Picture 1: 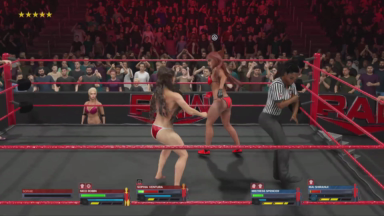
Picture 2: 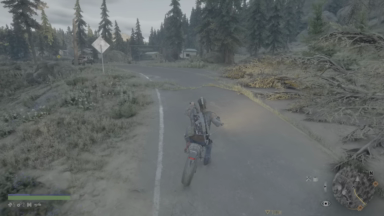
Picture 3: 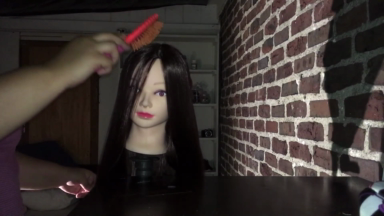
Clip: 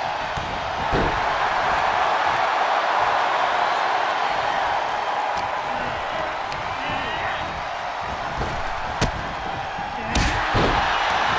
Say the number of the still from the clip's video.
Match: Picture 1